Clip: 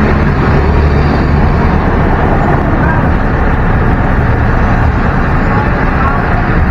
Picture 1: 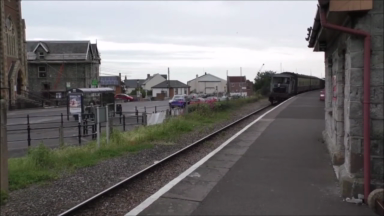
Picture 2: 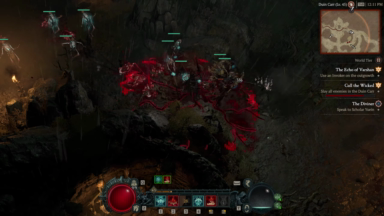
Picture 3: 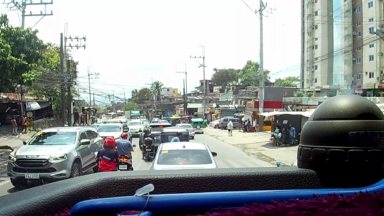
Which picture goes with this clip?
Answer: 3